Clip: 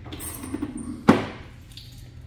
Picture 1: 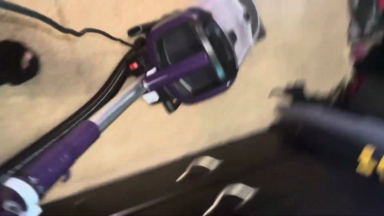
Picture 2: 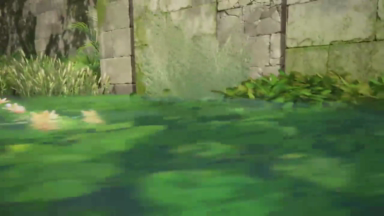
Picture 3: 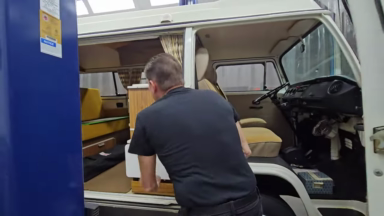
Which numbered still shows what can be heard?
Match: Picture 3